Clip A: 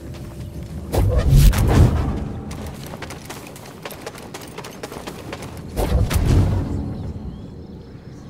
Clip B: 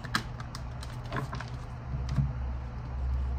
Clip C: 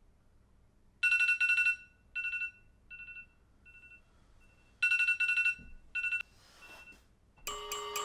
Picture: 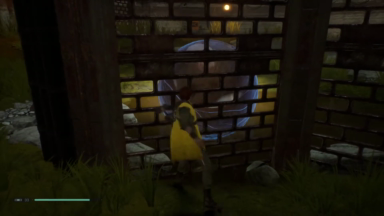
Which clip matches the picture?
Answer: A